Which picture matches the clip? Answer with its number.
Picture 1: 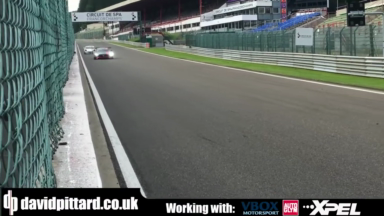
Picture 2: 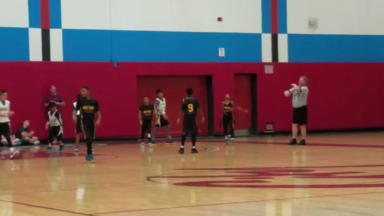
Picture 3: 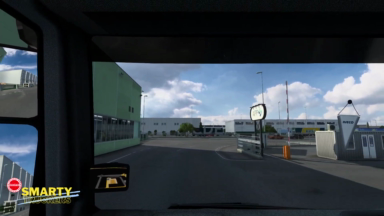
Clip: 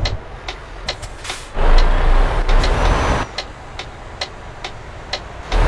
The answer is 3